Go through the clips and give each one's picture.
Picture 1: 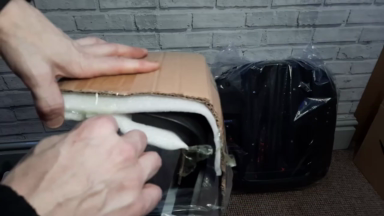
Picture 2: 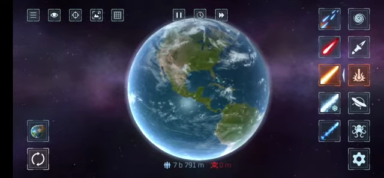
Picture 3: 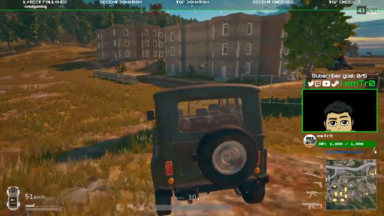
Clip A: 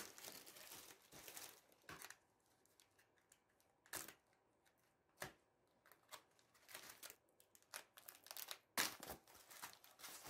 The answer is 1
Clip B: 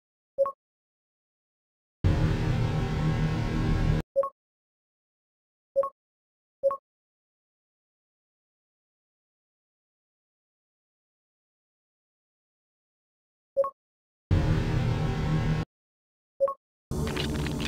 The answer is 2